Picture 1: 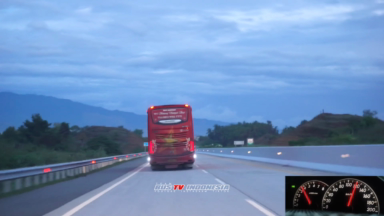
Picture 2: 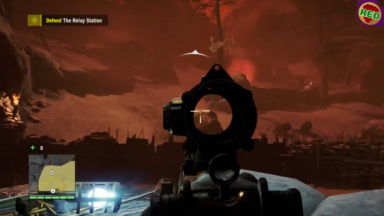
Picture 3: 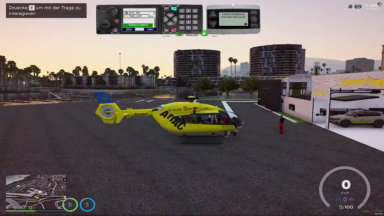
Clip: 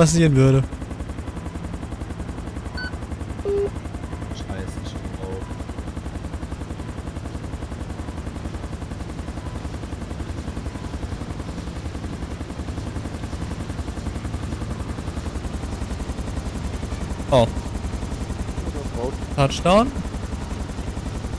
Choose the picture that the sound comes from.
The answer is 3